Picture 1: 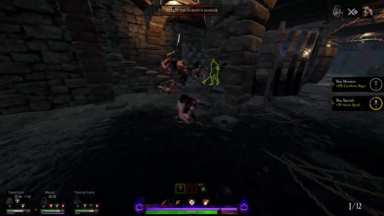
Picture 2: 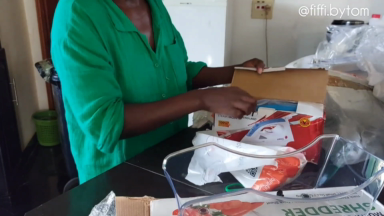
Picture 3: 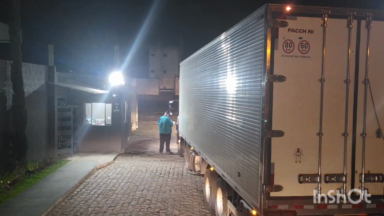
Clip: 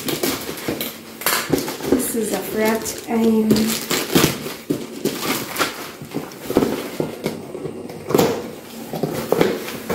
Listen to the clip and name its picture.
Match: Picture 2